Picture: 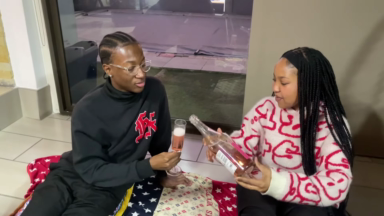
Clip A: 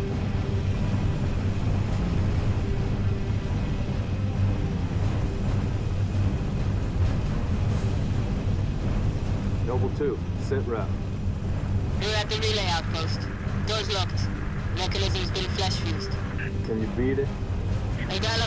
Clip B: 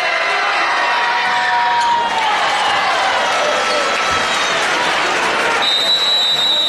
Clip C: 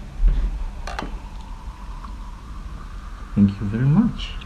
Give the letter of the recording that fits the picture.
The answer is C